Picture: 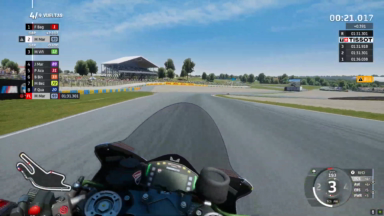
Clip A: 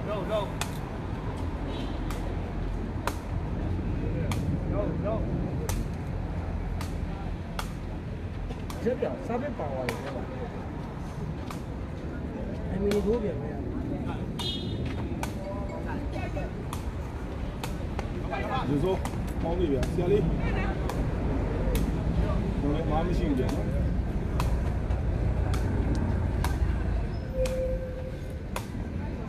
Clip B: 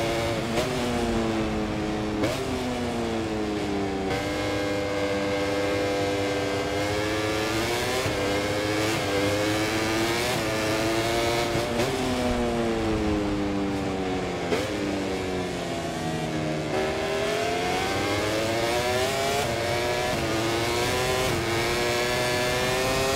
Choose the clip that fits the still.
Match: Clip B